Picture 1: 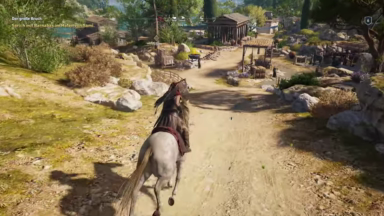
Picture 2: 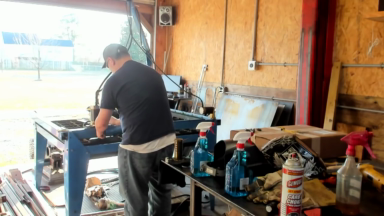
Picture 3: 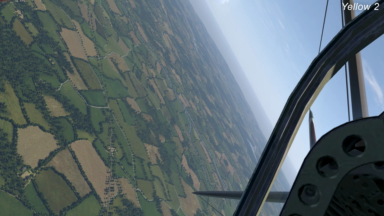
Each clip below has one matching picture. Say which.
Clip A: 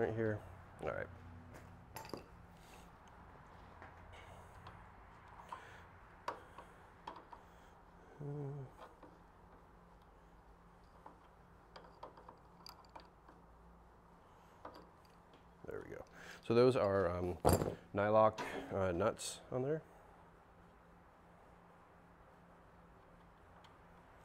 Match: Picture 2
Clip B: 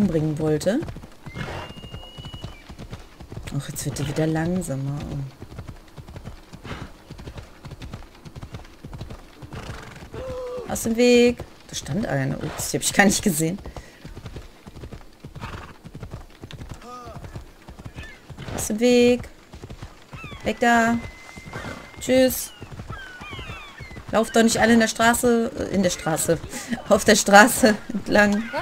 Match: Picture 1